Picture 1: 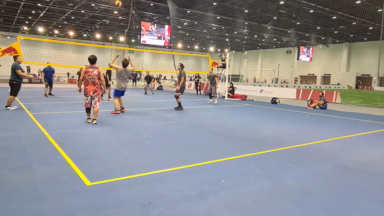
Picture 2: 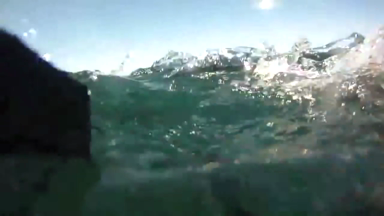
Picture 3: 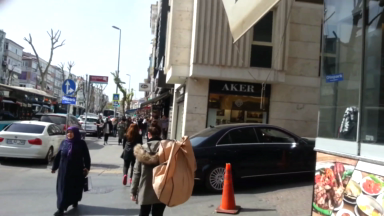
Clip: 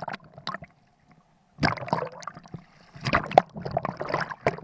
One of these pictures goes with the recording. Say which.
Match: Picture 2